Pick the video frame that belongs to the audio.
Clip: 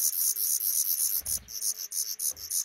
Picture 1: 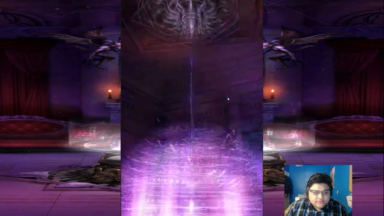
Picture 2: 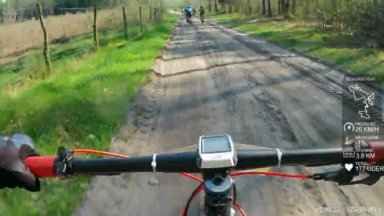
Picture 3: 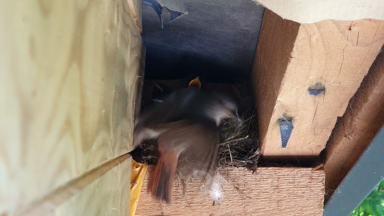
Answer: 3